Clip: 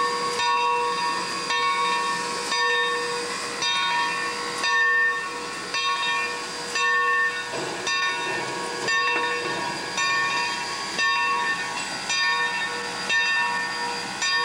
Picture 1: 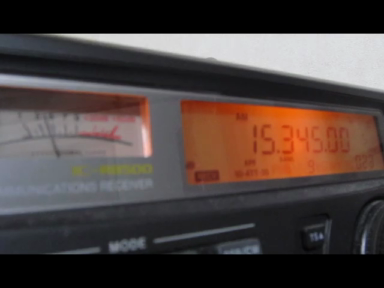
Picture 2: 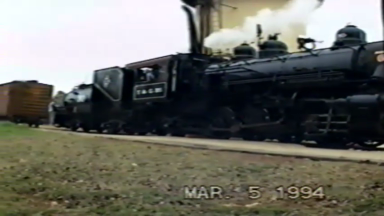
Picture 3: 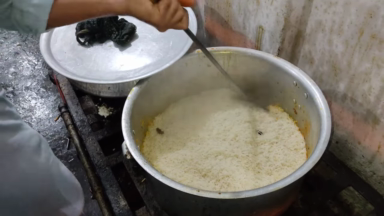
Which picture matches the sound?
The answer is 2